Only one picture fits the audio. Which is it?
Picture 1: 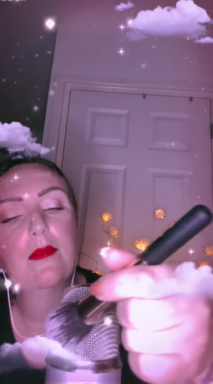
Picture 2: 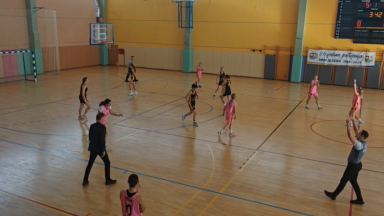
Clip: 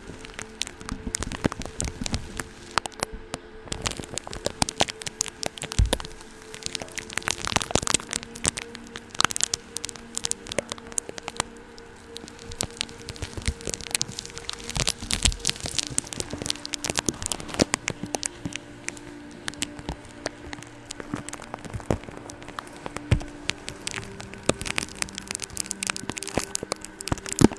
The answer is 1